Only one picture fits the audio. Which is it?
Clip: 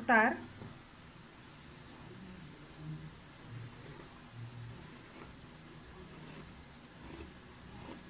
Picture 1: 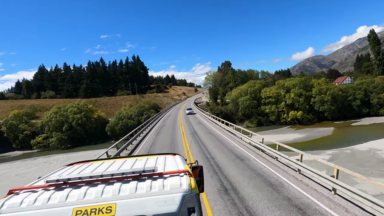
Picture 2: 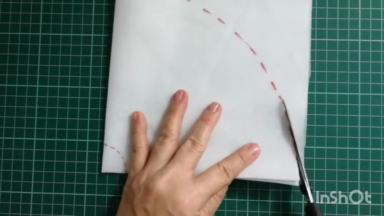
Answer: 2